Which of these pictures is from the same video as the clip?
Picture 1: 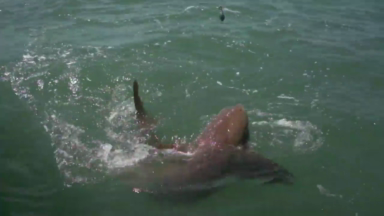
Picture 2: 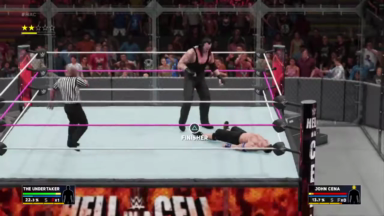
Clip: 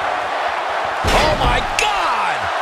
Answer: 2